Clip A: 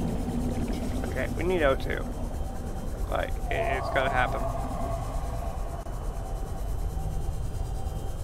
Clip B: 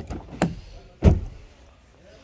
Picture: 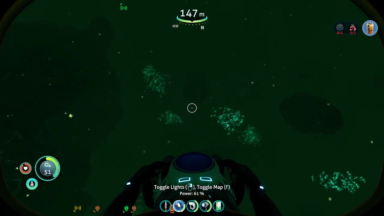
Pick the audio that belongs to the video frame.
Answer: A